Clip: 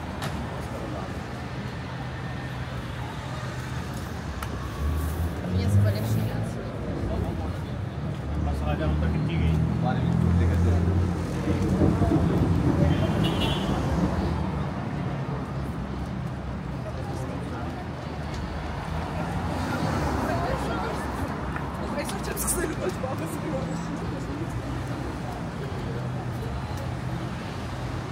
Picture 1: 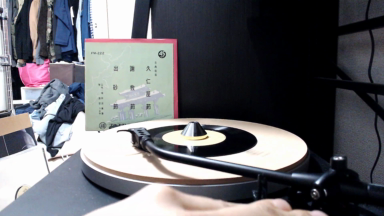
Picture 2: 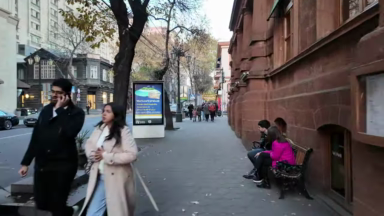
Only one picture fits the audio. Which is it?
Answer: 2